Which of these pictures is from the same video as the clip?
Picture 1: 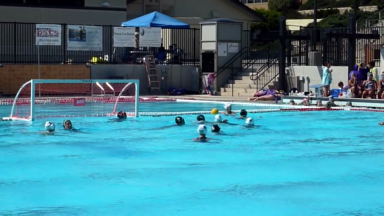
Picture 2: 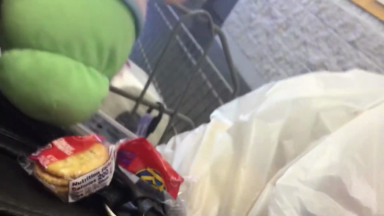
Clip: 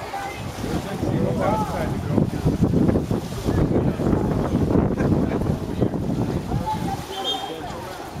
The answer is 1